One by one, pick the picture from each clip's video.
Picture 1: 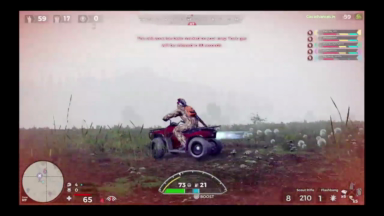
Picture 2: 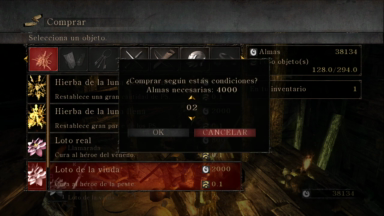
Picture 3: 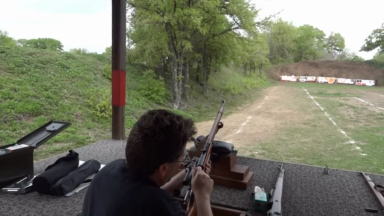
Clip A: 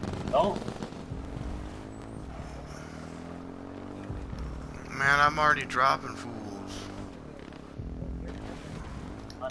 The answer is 1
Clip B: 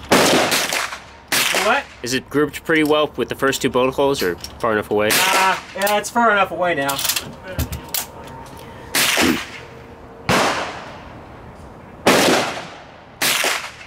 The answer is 3